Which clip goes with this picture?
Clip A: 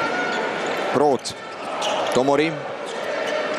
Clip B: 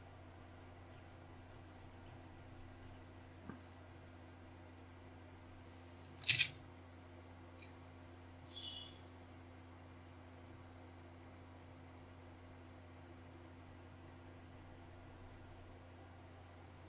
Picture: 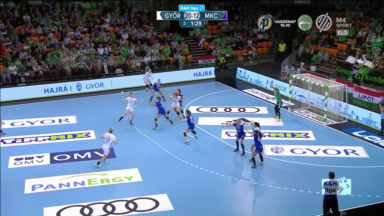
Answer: A